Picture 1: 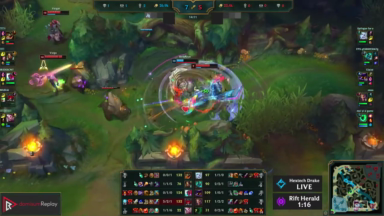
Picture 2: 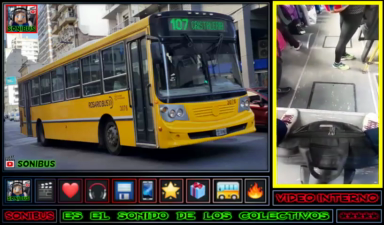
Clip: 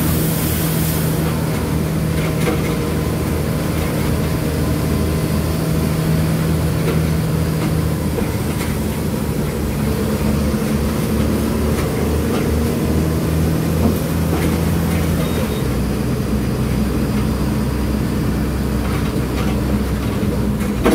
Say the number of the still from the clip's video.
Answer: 2